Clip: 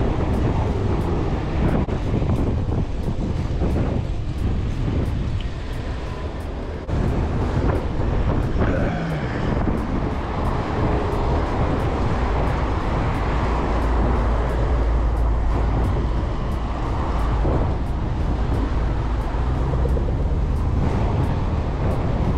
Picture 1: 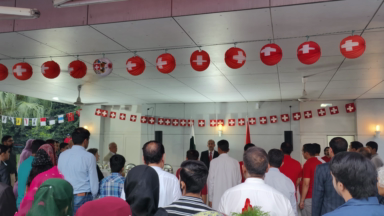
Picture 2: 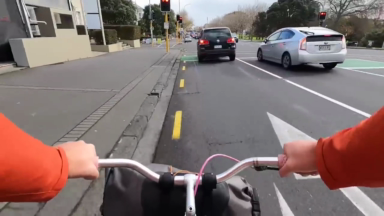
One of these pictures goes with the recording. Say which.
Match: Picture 2